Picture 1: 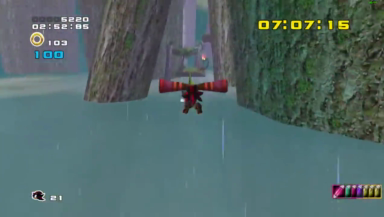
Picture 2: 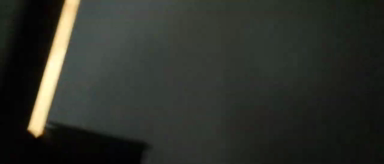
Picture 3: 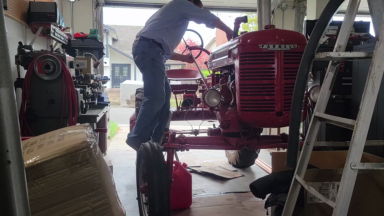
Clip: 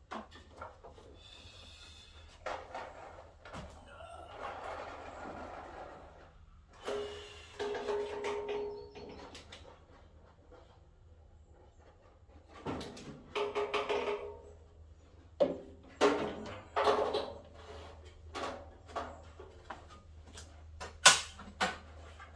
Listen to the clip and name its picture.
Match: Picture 3